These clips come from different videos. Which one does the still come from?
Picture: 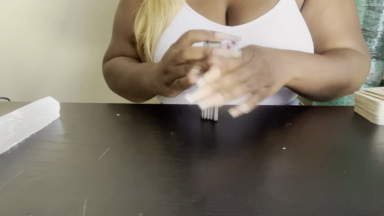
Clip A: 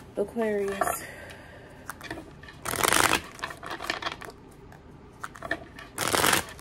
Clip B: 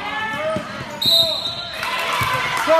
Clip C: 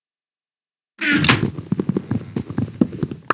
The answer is A